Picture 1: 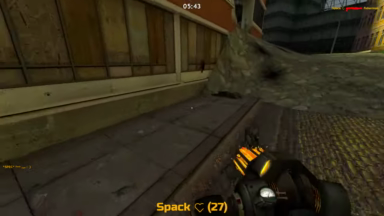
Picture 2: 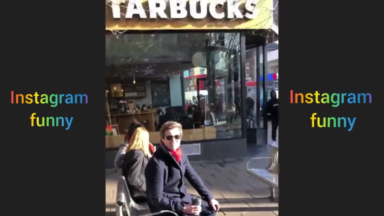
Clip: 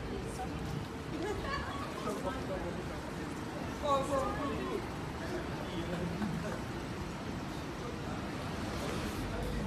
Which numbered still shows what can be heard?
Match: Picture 2